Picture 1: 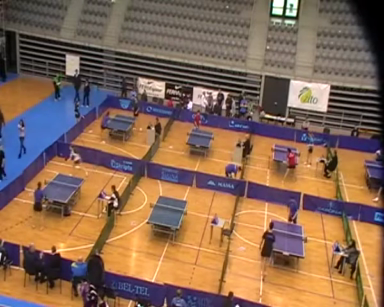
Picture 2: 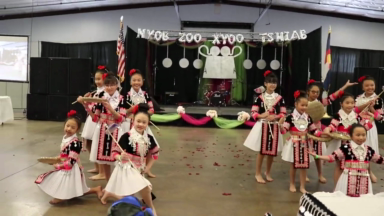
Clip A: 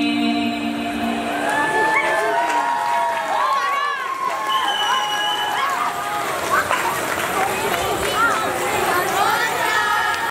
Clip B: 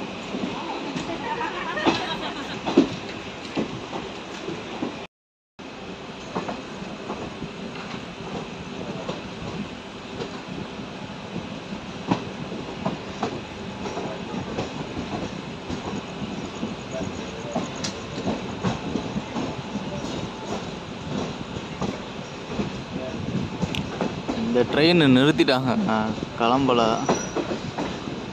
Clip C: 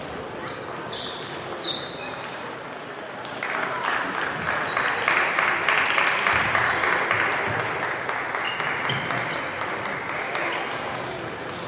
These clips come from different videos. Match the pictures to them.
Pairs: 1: C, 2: A